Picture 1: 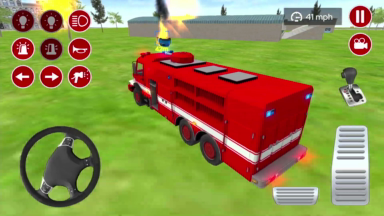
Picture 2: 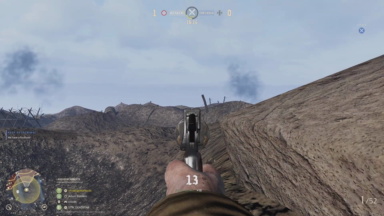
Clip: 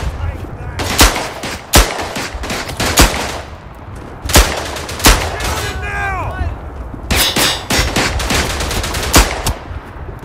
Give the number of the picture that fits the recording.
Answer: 2